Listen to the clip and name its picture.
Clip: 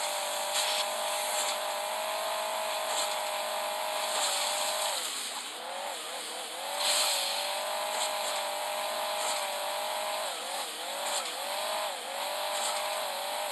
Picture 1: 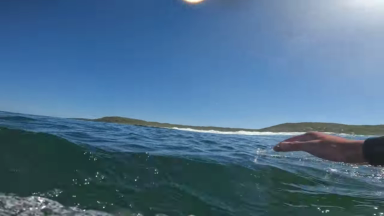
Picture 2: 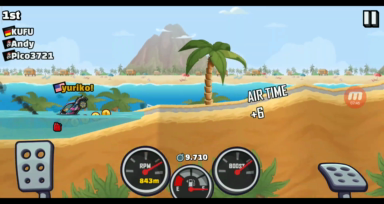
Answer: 2